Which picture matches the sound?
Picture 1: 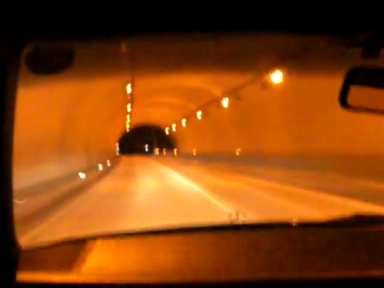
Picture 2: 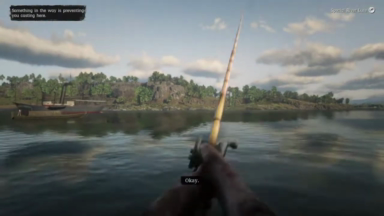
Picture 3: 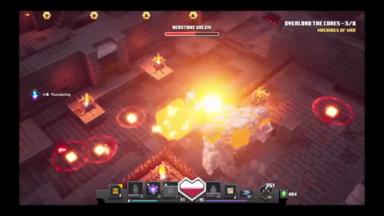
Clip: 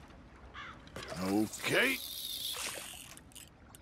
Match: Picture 2